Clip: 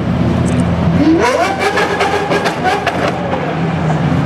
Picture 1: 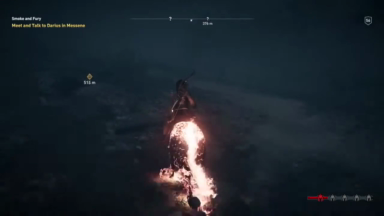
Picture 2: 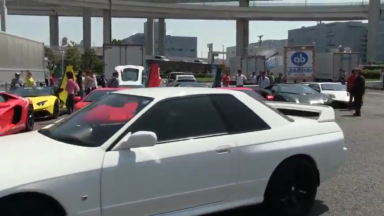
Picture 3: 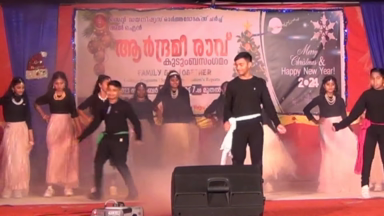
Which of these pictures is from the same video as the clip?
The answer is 2